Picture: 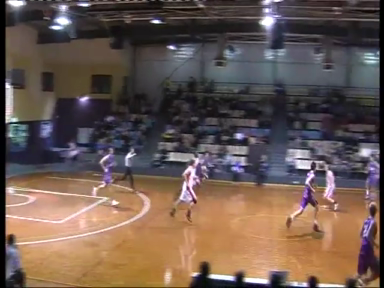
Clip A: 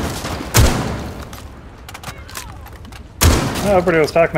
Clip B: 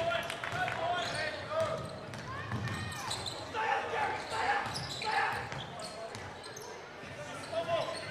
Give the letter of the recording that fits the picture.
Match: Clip B